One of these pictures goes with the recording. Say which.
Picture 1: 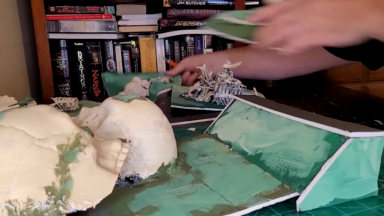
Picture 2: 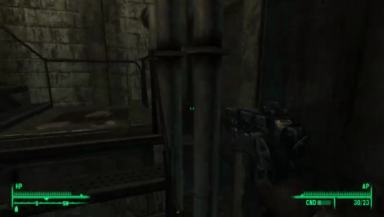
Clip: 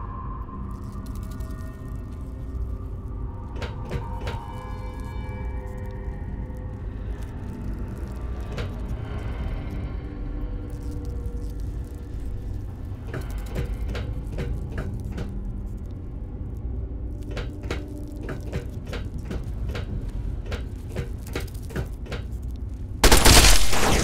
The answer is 2